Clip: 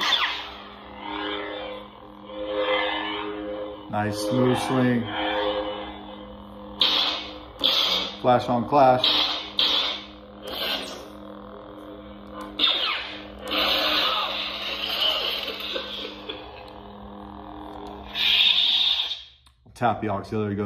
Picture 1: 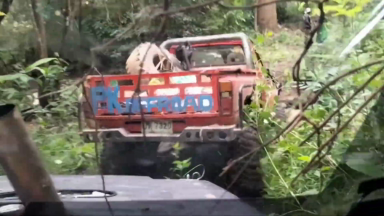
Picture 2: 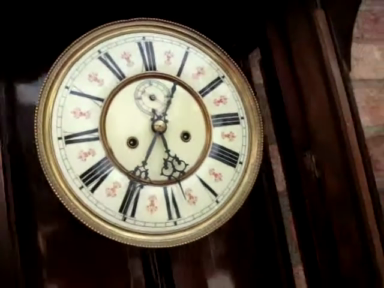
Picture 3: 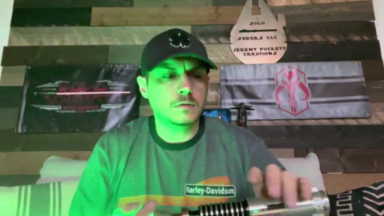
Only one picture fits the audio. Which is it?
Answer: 3